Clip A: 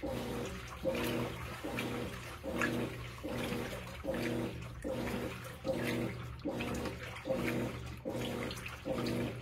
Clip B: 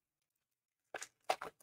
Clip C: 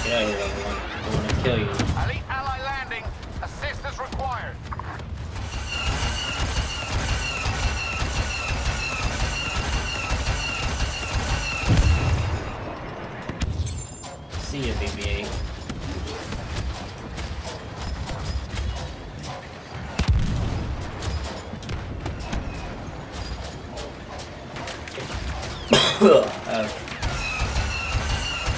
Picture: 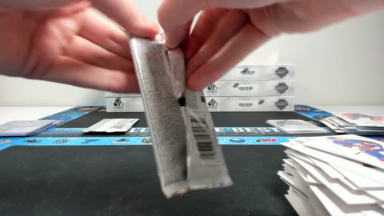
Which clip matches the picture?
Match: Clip B